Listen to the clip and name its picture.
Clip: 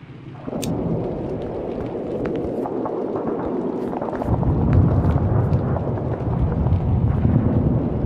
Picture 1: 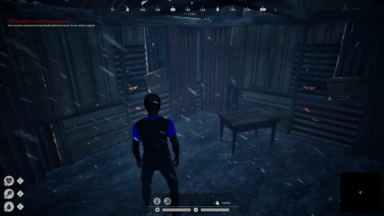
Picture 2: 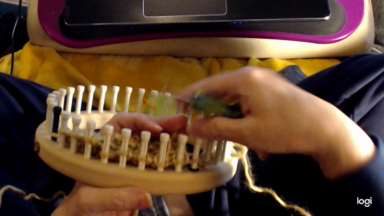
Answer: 1